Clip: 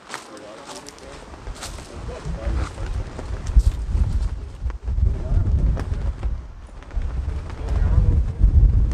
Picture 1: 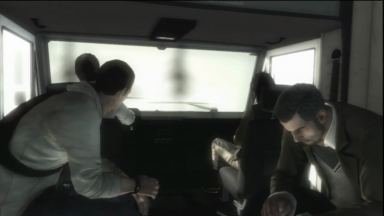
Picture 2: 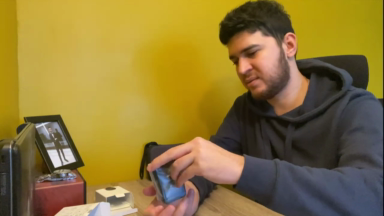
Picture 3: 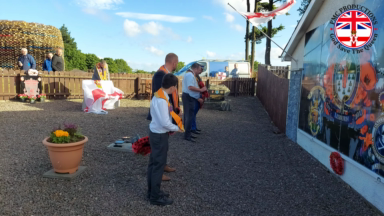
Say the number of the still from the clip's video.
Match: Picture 3